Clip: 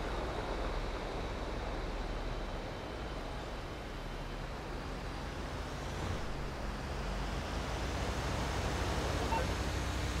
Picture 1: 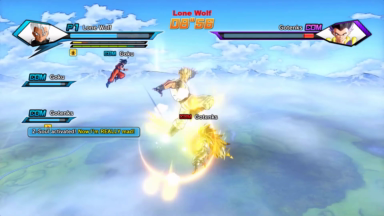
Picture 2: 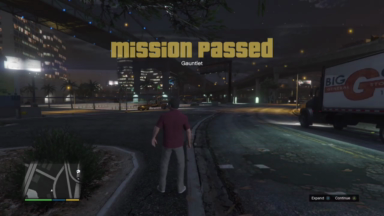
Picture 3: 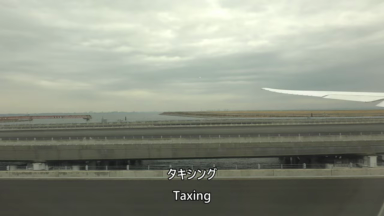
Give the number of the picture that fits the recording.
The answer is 2